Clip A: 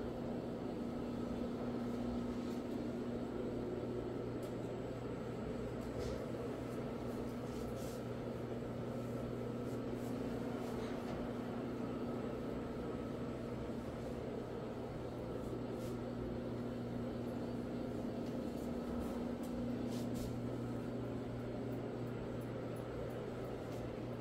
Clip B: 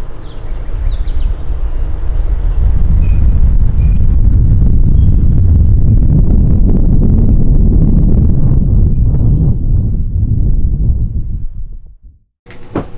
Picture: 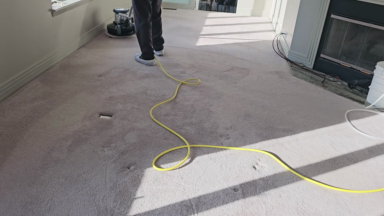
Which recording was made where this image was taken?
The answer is A